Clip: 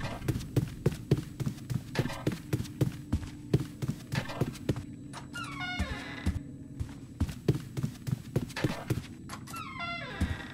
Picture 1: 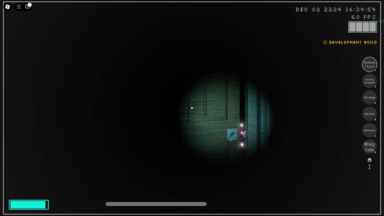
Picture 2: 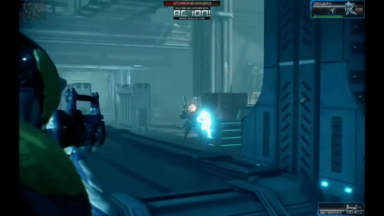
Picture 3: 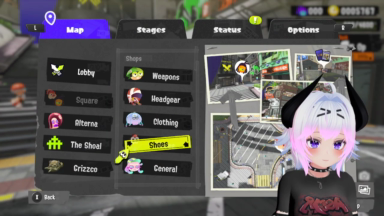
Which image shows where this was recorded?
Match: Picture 1